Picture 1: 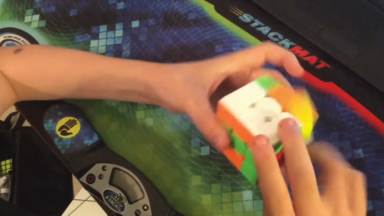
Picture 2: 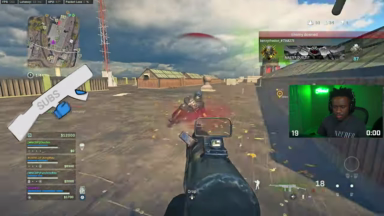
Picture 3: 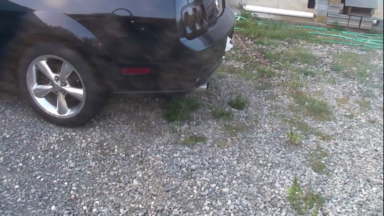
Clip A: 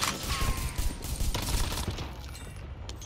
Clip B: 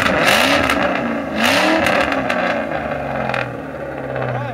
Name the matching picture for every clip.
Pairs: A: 2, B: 3